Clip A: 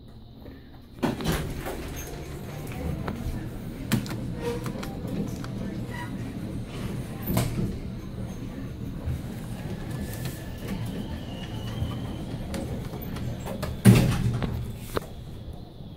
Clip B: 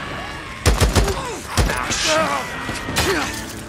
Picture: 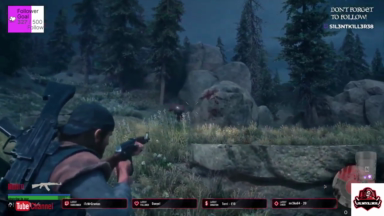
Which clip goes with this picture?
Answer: B